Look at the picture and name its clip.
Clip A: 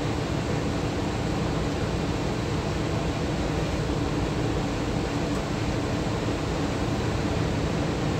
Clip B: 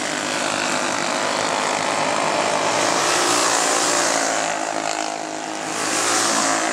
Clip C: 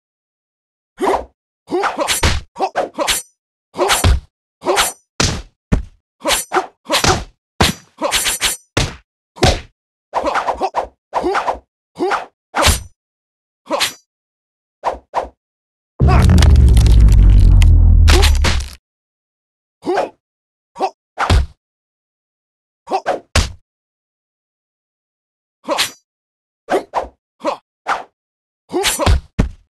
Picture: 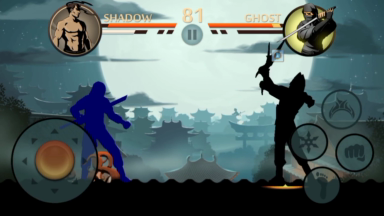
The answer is C